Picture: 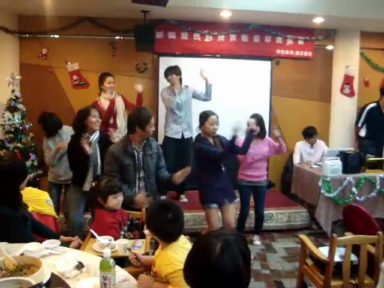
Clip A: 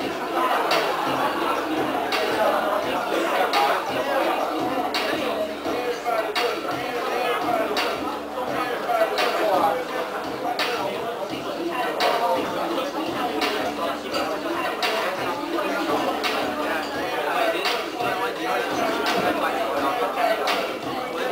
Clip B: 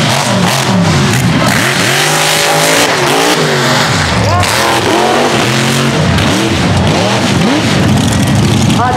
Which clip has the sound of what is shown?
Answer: A